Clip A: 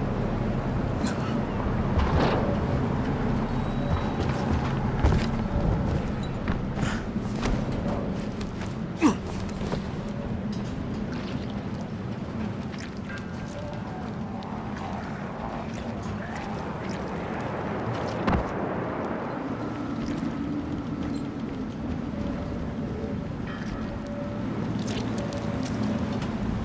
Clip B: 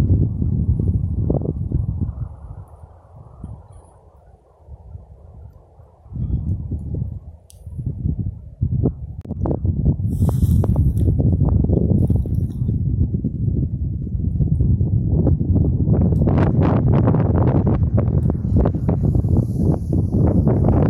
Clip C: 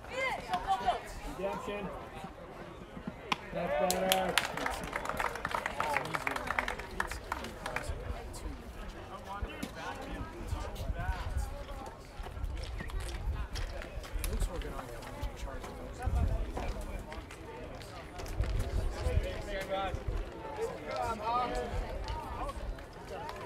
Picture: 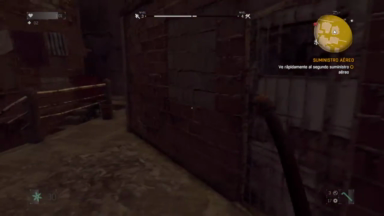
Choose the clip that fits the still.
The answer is A